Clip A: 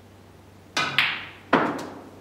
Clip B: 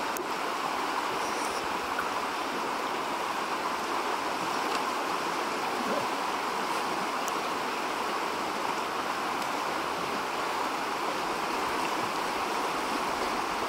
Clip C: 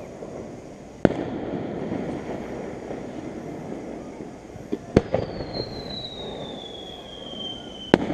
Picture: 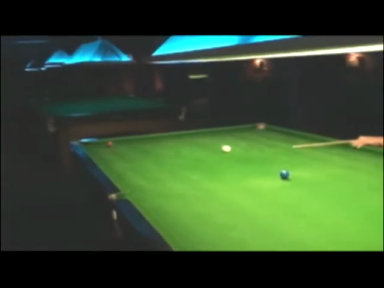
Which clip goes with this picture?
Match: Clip A